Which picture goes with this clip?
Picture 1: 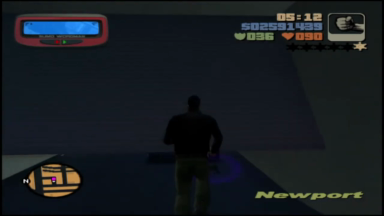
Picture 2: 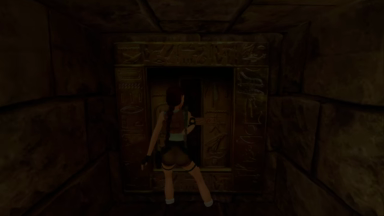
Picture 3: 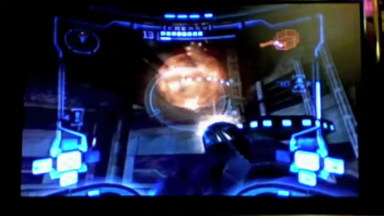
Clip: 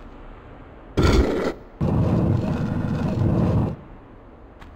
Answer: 2